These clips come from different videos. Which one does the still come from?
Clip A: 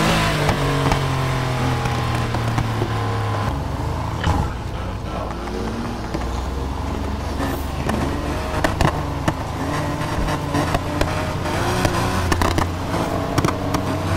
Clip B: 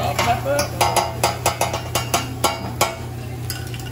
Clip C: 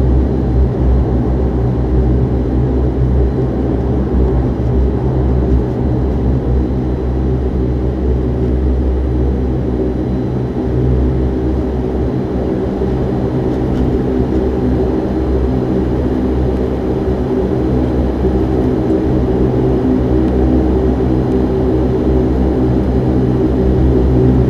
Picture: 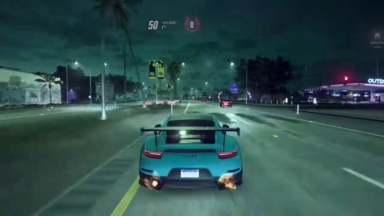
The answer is A